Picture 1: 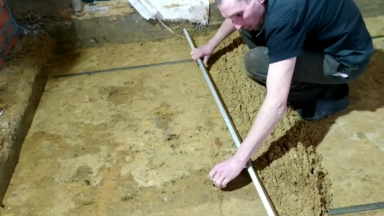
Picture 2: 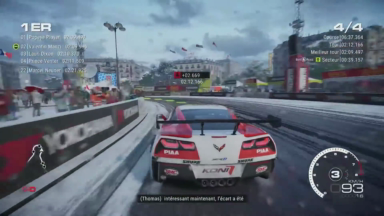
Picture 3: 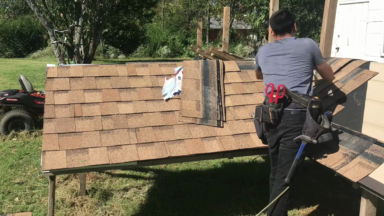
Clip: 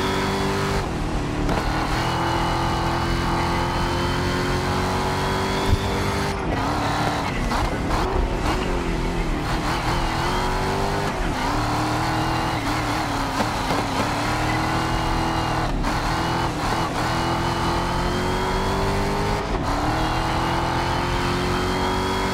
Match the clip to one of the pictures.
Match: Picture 2